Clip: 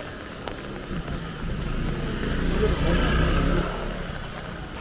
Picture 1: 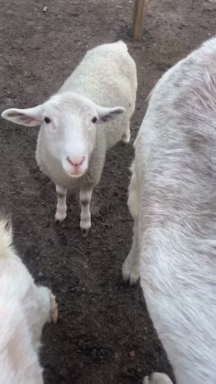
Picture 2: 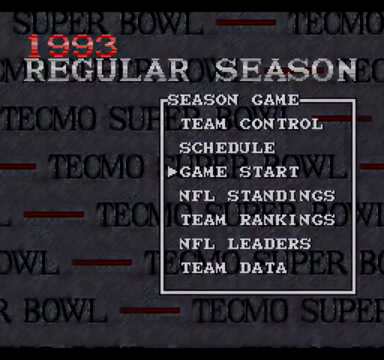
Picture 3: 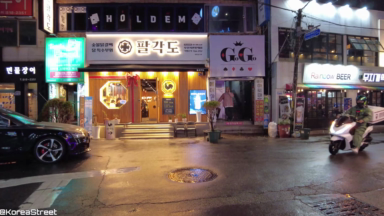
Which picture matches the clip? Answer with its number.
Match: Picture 3